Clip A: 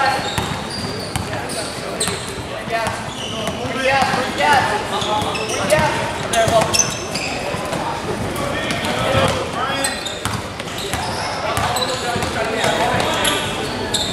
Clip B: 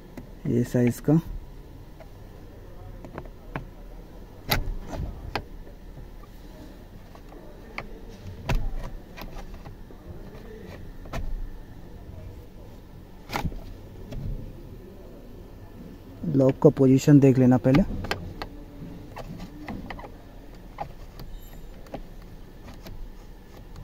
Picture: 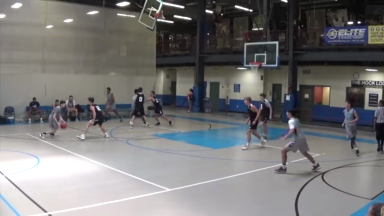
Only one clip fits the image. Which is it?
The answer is A